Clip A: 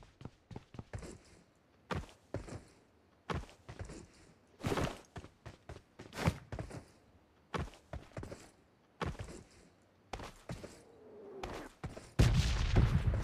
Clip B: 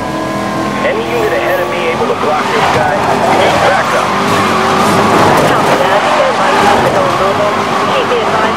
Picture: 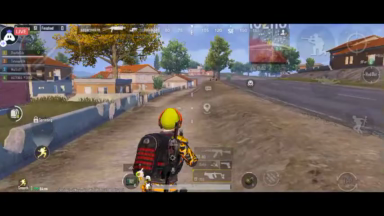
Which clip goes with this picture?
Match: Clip A